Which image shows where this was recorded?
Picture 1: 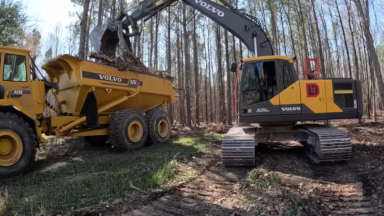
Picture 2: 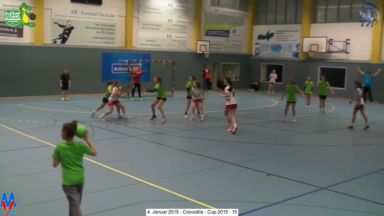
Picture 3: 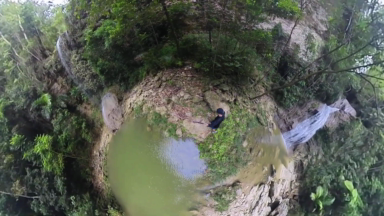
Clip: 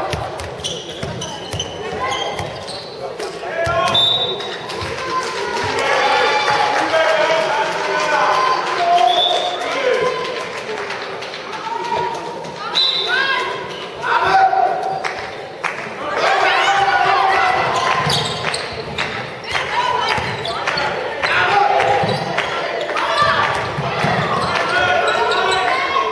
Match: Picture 2